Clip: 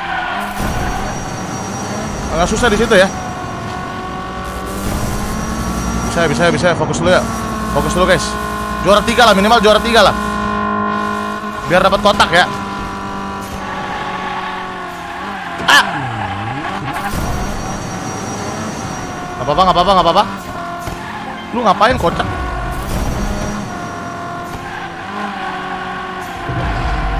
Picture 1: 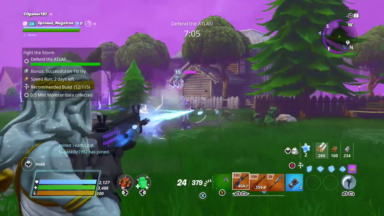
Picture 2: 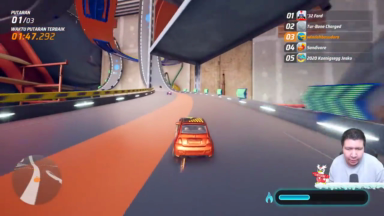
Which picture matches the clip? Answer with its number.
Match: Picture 2